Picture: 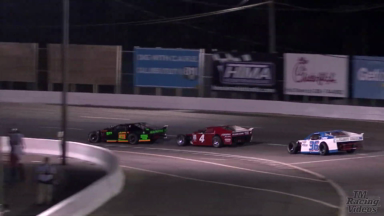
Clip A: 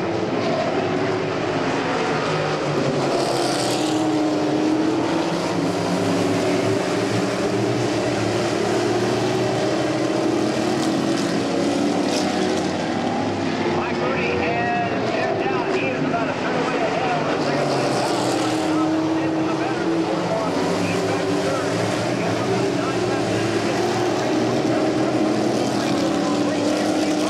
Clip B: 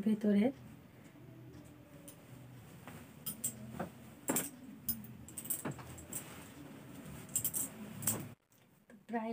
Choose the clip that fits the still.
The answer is A